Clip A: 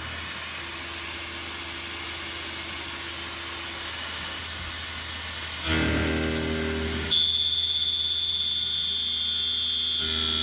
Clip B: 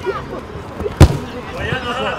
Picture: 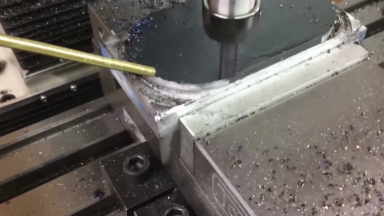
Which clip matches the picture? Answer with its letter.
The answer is A